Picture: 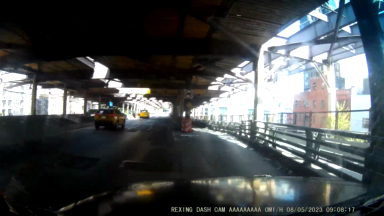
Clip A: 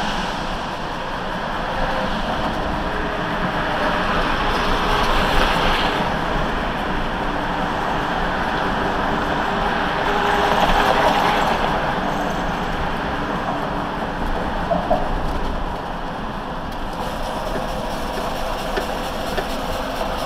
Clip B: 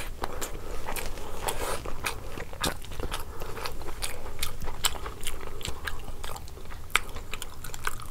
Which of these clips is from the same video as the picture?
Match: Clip A